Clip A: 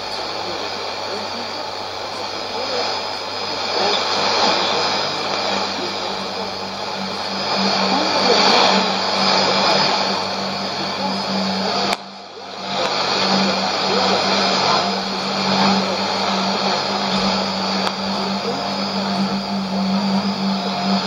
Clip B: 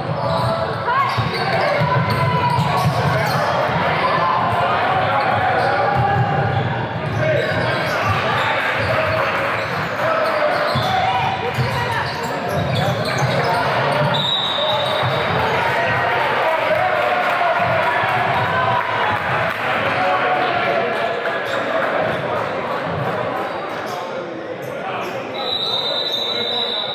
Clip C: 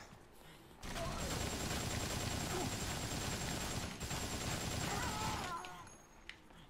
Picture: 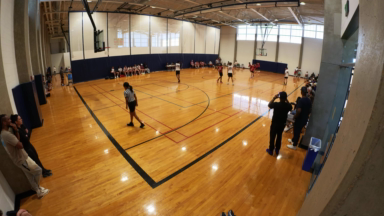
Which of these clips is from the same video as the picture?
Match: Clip B